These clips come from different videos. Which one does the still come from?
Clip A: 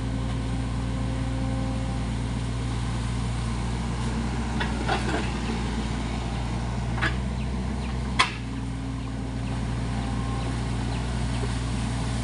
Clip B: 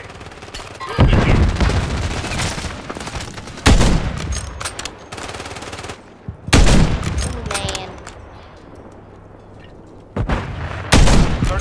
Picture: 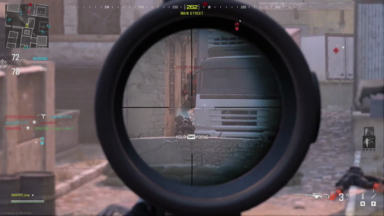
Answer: B